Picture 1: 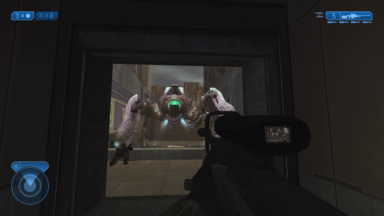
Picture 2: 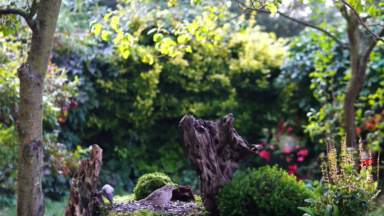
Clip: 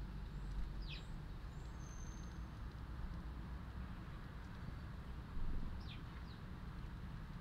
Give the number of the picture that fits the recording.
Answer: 2